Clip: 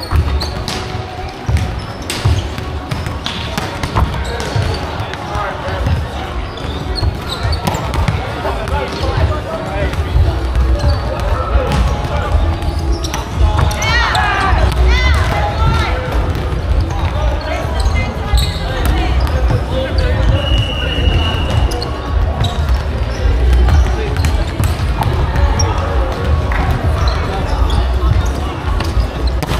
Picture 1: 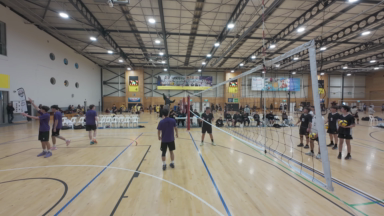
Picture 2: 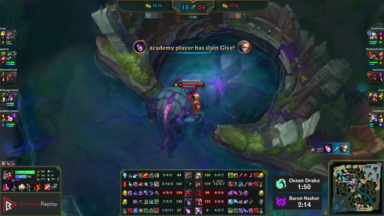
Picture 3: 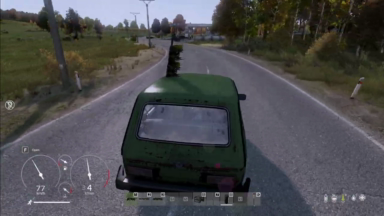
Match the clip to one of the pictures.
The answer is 1